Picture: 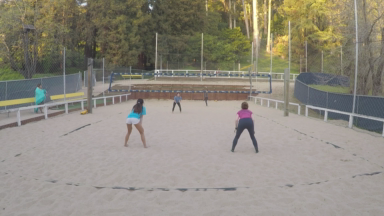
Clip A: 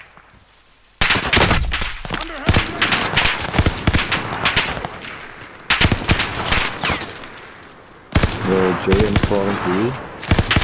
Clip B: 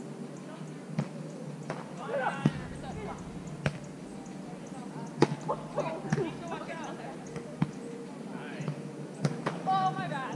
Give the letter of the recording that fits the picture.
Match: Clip B